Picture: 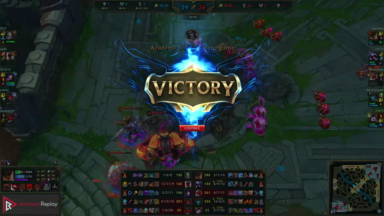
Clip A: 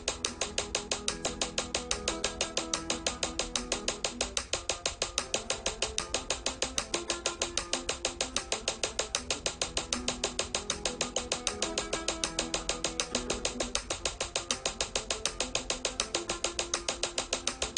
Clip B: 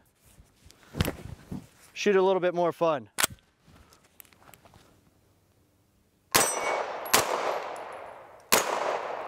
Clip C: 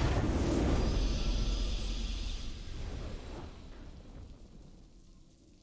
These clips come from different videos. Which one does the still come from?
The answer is C